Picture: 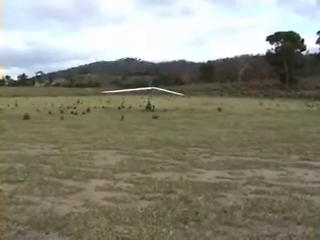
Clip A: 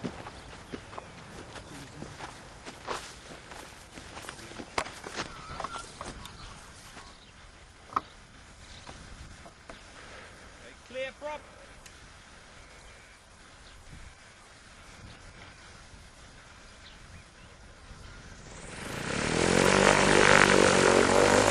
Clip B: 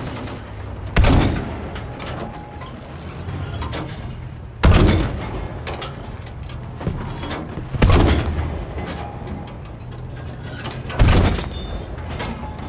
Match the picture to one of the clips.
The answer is A